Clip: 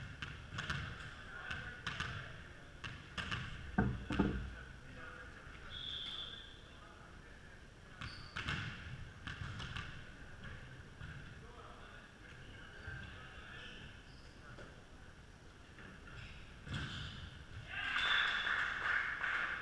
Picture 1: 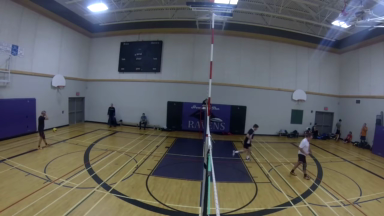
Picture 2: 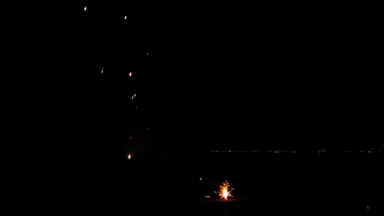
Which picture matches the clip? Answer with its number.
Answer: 1